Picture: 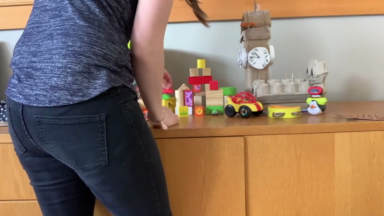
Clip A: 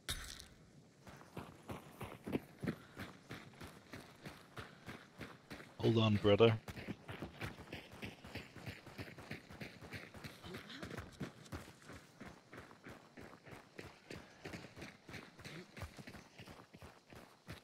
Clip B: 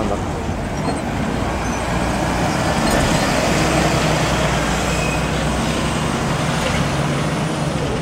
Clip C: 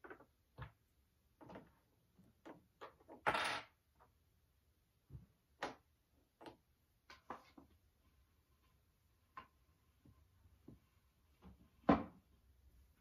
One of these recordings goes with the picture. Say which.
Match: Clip C